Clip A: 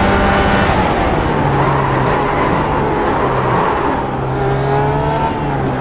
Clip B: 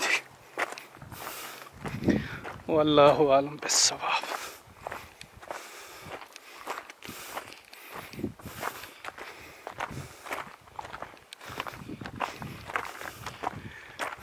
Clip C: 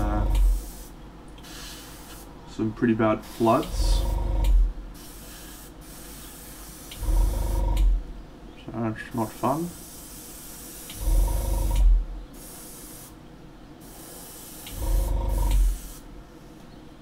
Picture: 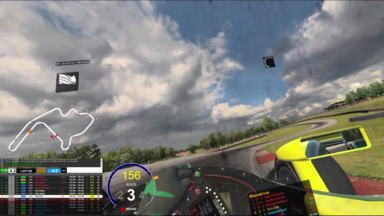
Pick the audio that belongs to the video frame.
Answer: A